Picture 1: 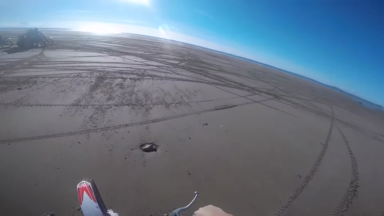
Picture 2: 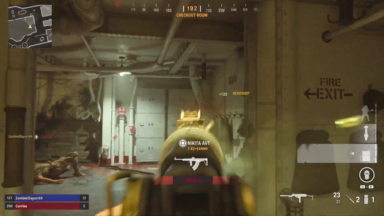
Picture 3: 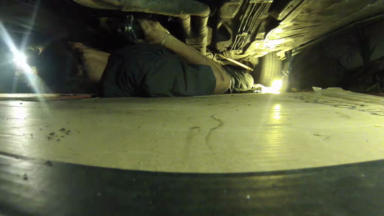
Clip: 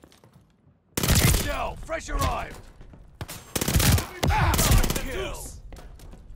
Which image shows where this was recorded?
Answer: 2